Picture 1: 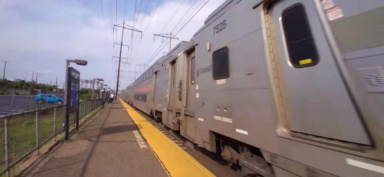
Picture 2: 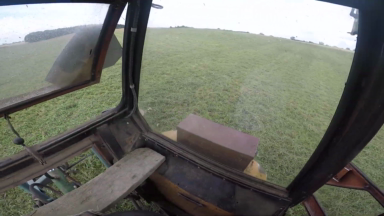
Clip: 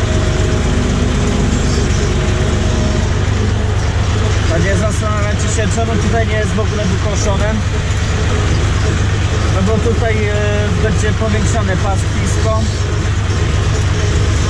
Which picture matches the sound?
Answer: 2